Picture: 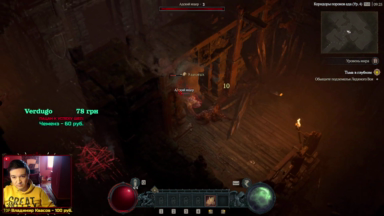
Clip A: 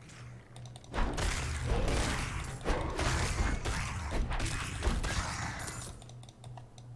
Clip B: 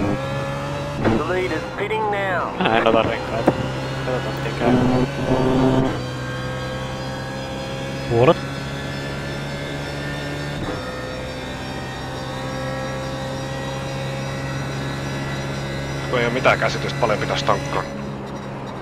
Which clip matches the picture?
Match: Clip A